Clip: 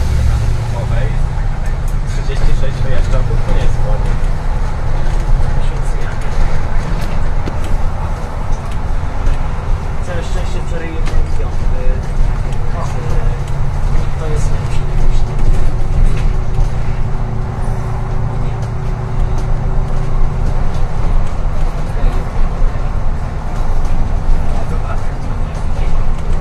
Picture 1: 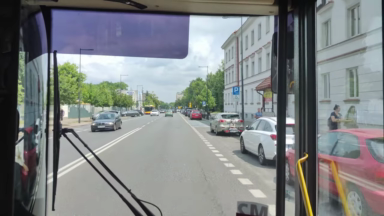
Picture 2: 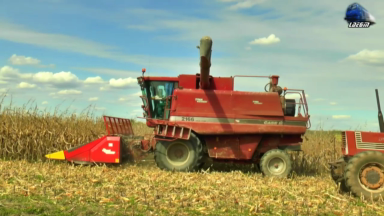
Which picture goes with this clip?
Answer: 1